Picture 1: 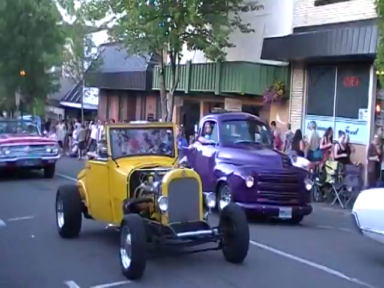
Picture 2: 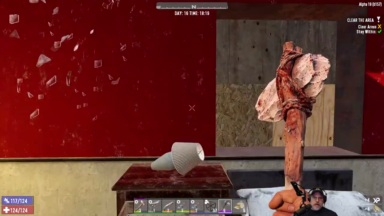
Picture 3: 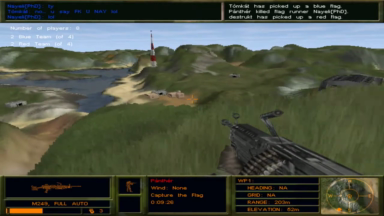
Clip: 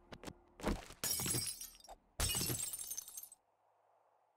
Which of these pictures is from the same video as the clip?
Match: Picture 2